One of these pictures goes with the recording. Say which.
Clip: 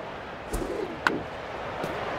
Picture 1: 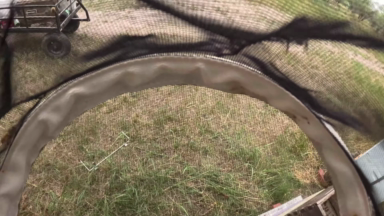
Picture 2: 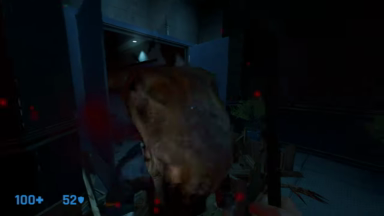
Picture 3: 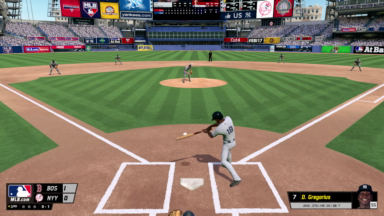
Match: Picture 3